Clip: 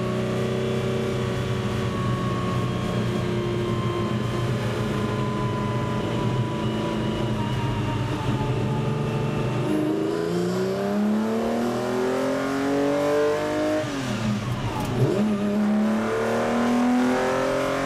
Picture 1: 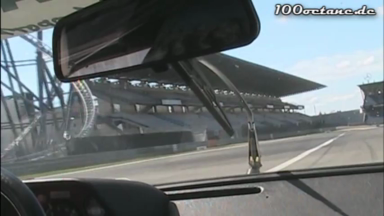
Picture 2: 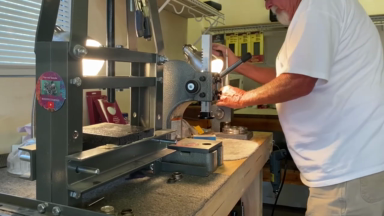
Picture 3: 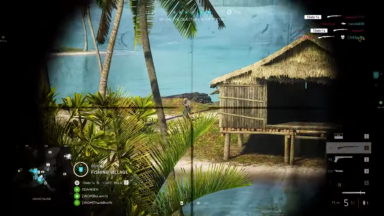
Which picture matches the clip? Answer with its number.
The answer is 1